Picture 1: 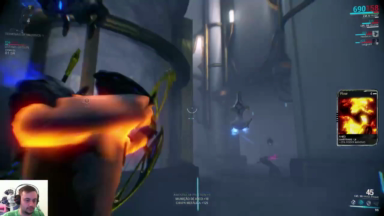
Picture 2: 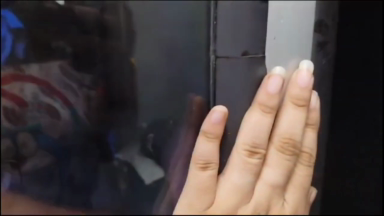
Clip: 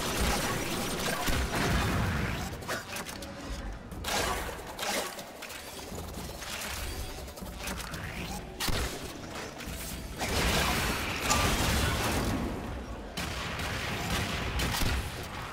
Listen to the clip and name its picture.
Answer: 1